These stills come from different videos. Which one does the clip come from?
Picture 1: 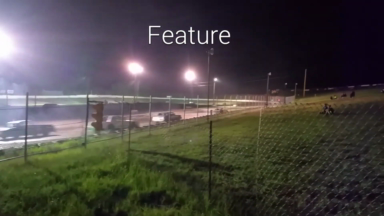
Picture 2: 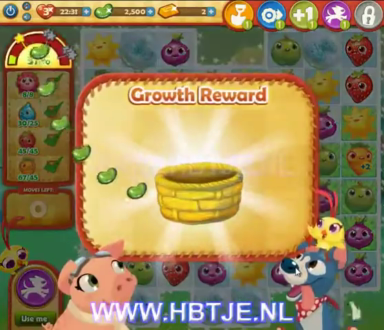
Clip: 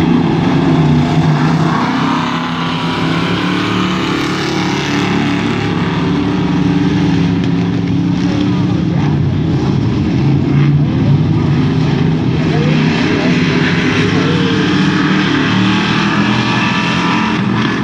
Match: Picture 1